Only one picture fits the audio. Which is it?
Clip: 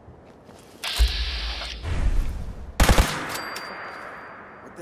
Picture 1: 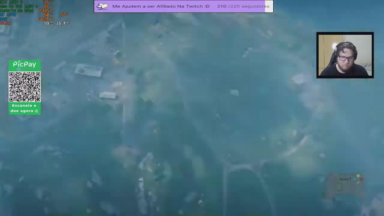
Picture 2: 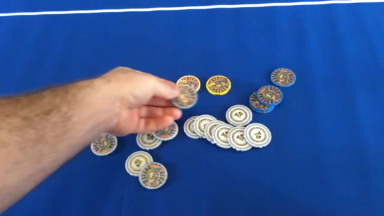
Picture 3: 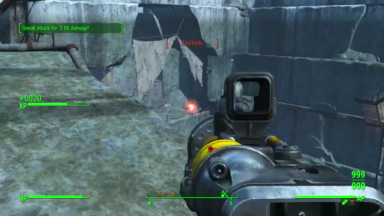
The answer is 3